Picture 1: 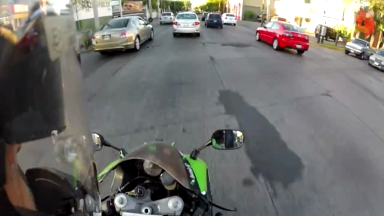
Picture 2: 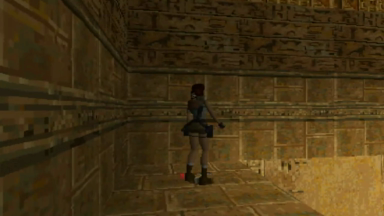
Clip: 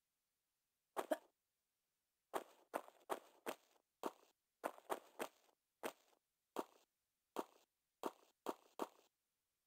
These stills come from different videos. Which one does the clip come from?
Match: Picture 2